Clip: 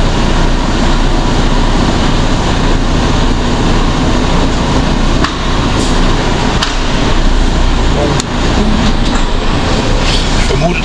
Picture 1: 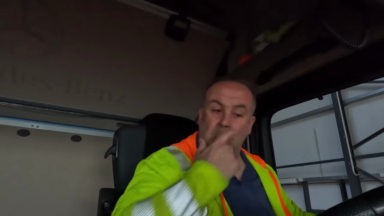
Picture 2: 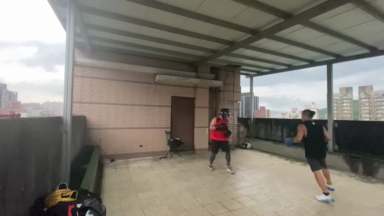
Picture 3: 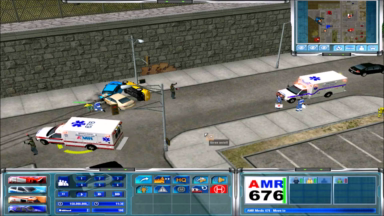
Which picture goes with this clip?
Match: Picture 1